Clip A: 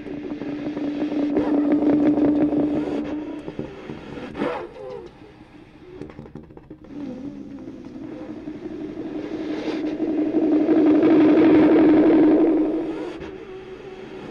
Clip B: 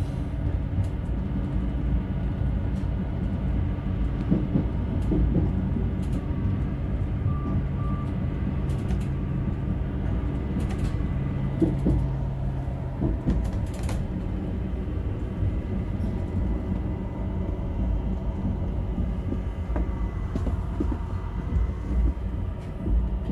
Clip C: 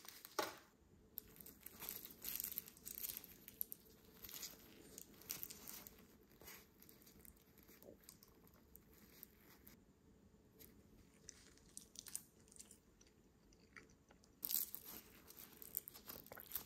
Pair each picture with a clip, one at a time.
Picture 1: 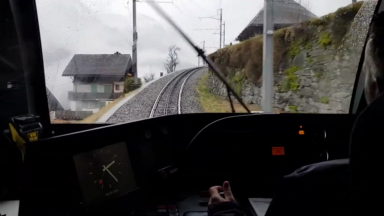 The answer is B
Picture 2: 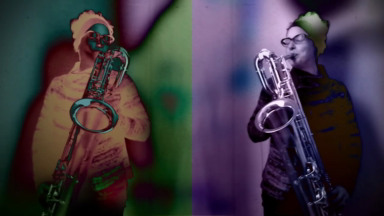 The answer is A